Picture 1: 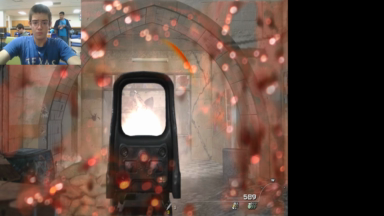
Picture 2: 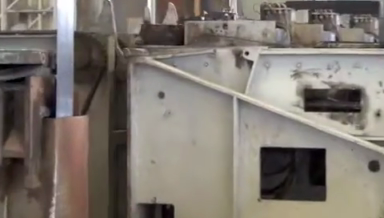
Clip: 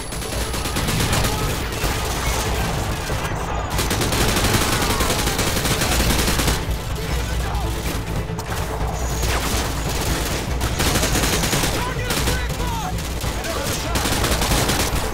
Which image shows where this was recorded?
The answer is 1